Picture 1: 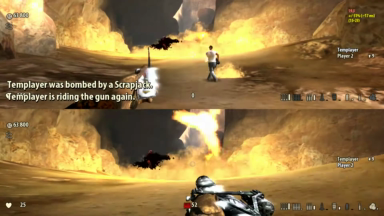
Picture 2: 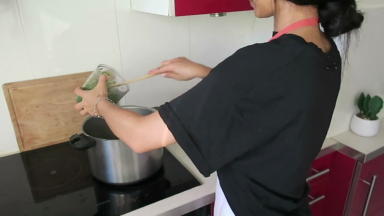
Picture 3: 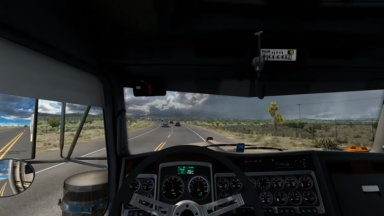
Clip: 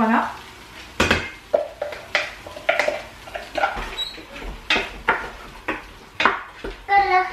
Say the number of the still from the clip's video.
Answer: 2